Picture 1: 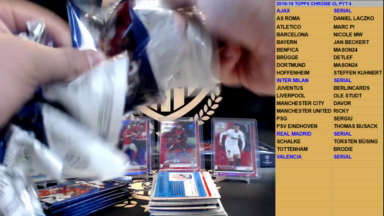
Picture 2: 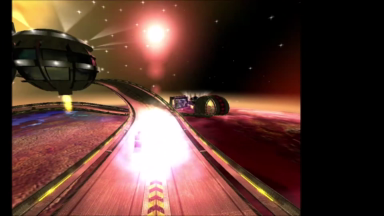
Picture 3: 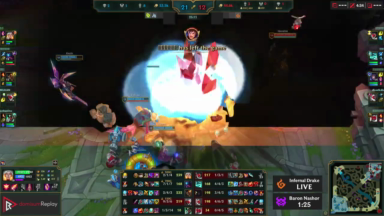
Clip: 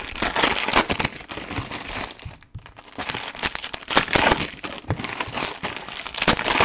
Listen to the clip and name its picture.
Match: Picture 1